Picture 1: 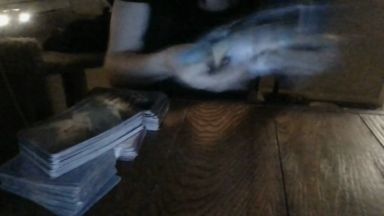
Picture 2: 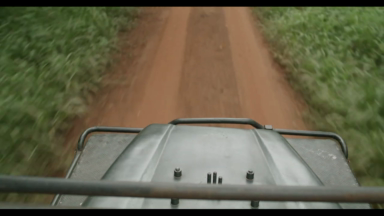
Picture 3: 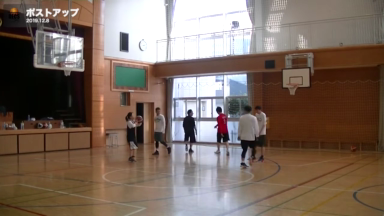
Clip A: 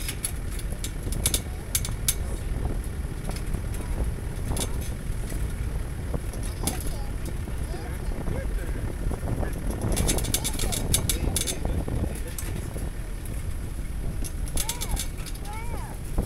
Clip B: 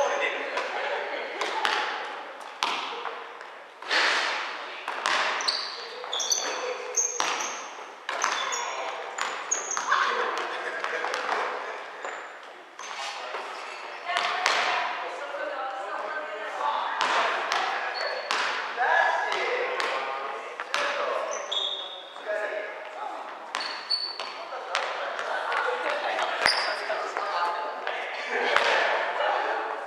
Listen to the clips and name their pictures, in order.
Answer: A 2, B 3